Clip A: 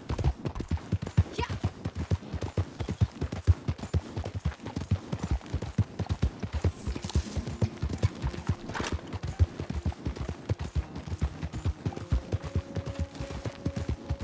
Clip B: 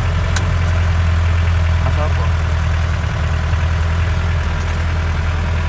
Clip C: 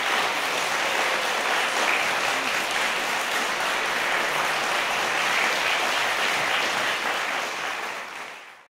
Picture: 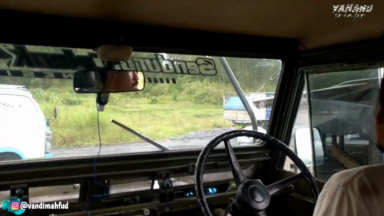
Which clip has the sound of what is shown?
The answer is B